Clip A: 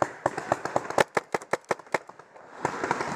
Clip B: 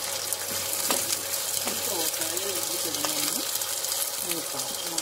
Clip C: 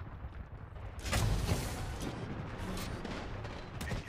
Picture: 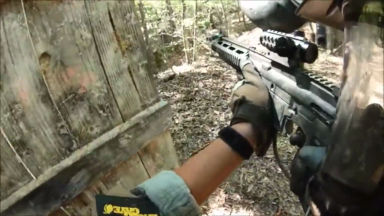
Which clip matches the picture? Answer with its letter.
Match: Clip A